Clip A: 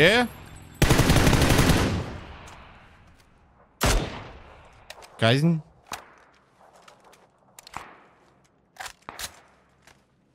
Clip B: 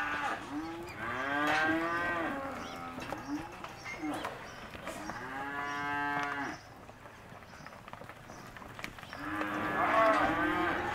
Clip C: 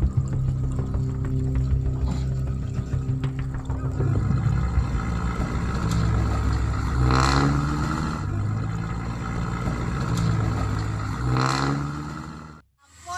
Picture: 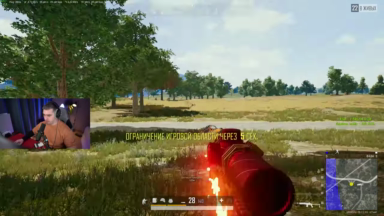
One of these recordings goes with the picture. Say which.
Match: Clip A